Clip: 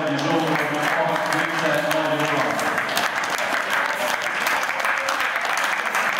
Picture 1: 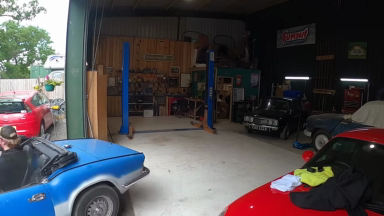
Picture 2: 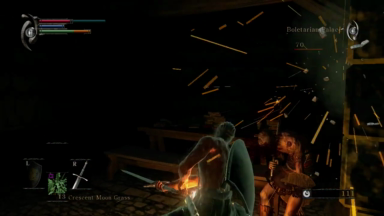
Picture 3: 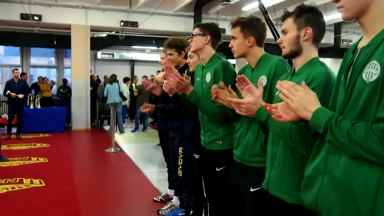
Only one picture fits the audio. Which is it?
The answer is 3